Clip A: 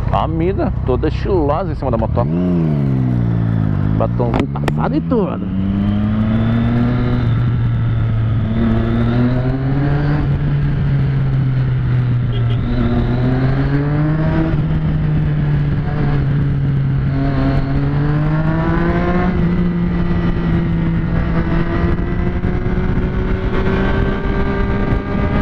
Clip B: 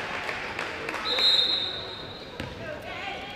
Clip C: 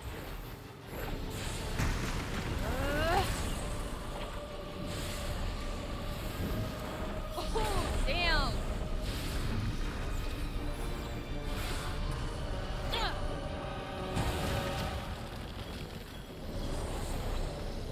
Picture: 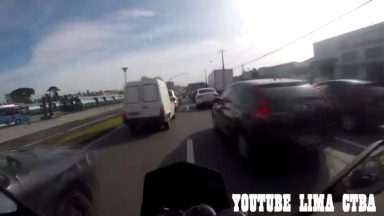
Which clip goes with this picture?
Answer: A